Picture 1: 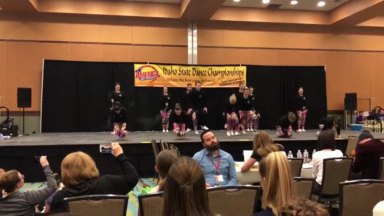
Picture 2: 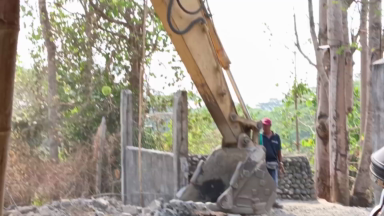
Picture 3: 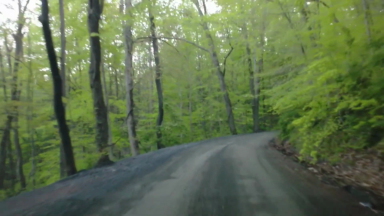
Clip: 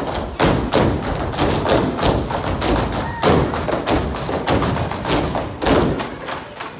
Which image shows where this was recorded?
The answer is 1